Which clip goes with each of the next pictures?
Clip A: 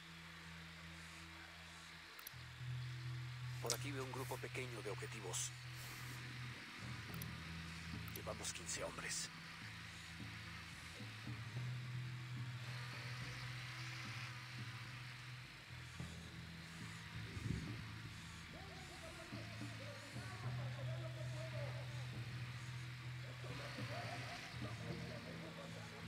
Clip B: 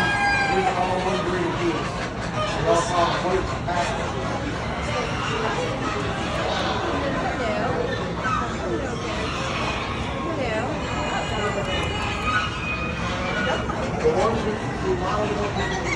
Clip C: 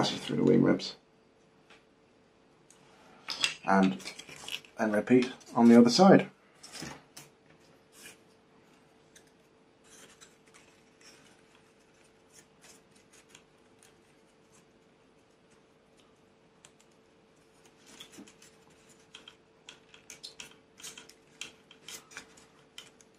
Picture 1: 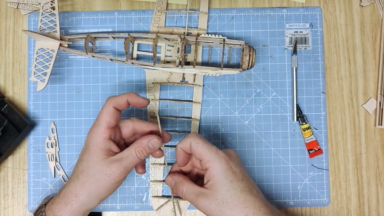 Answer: C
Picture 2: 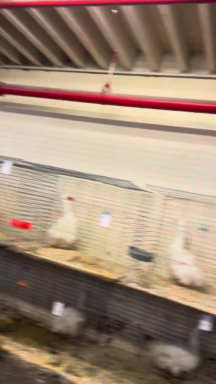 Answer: B